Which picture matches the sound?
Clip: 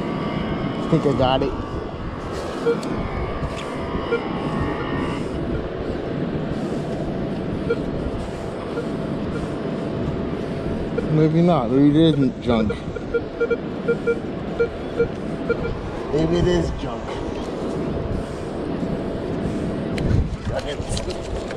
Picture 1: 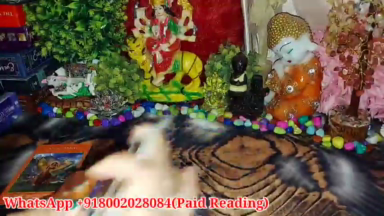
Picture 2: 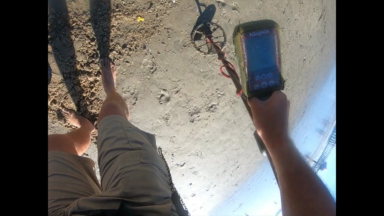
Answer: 2